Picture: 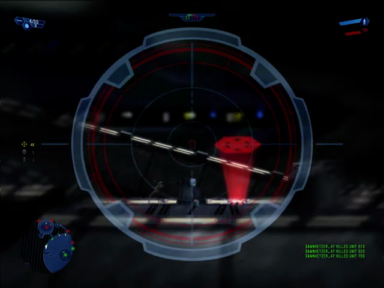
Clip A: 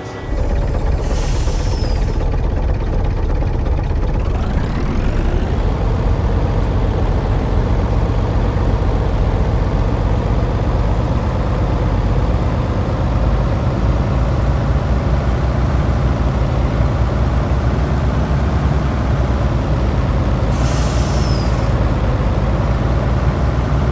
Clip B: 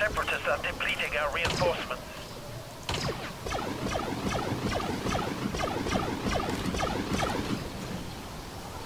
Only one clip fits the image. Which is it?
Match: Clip B